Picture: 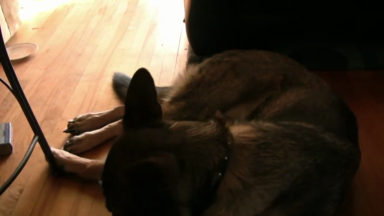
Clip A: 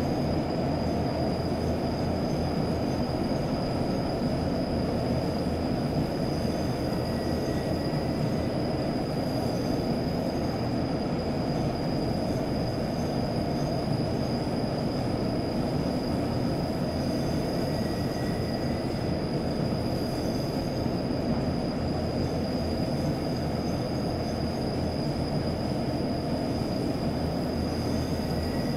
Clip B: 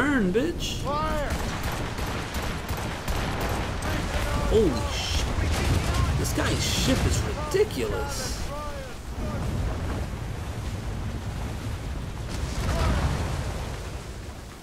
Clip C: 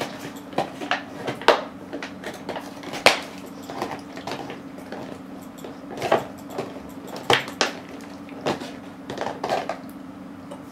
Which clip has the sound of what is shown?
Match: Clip C